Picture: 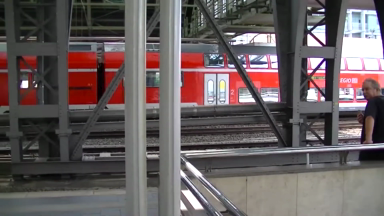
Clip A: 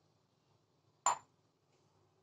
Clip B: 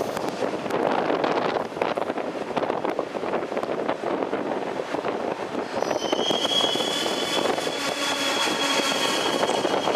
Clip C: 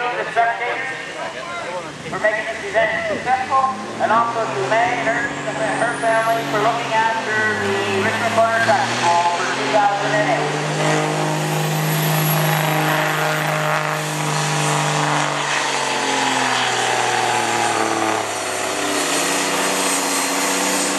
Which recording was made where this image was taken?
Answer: B